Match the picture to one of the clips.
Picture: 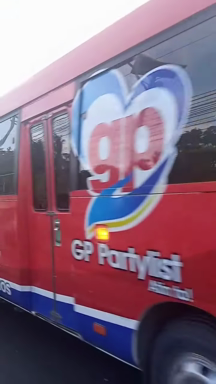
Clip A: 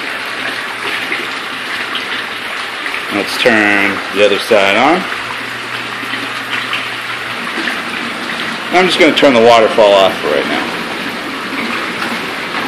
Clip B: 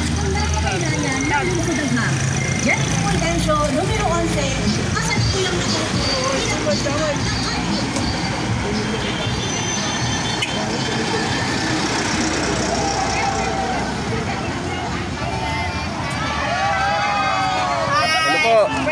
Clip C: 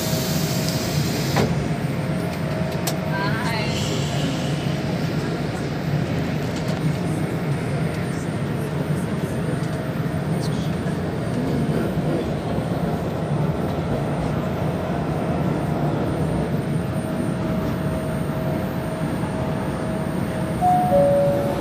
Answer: B